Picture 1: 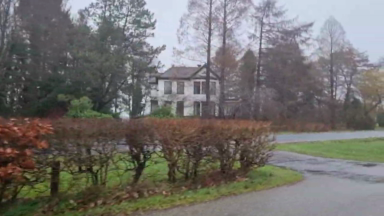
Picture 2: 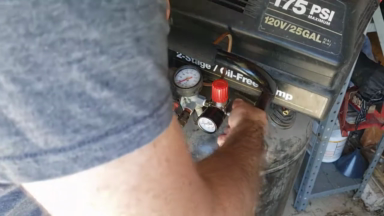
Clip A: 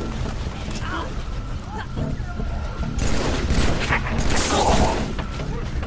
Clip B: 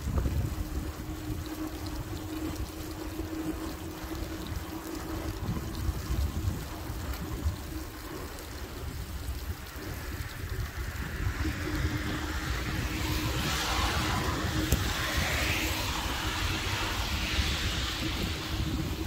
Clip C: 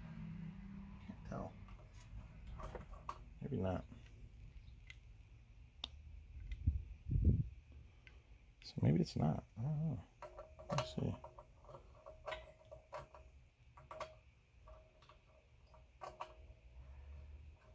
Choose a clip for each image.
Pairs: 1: B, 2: C